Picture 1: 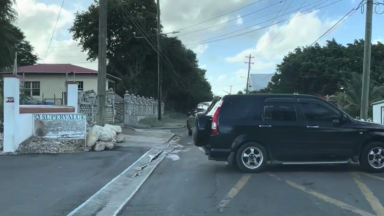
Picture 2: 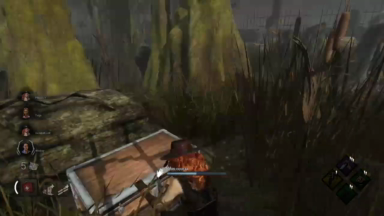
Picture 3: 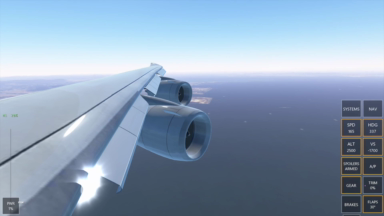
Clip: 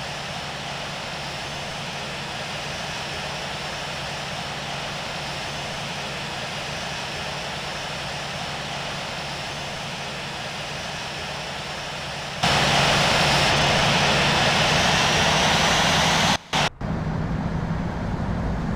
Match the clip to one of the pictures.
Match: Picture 3